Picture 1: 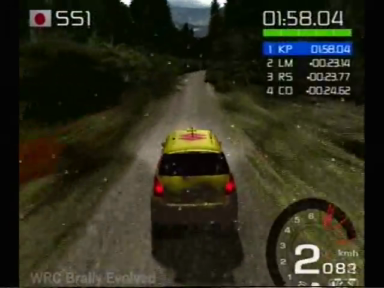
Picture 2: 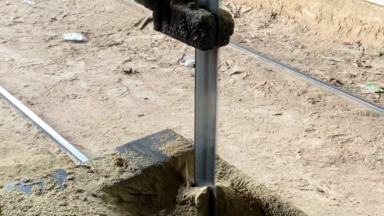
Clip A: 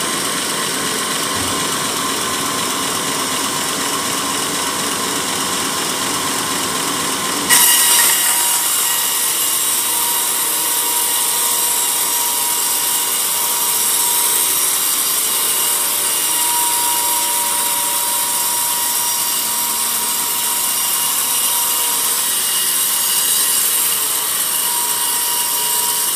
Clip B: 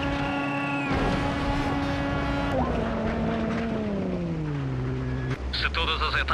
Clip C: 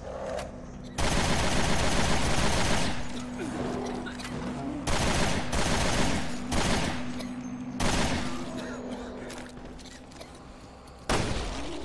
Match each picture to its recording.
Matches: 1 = B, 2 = A